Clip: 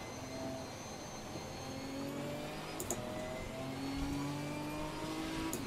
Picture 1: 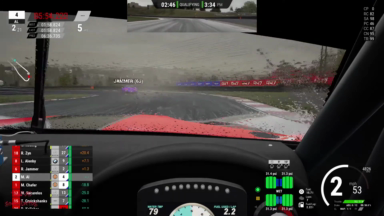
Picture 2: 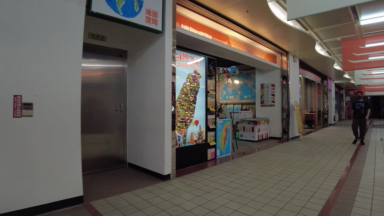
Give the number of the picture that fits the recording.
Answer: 1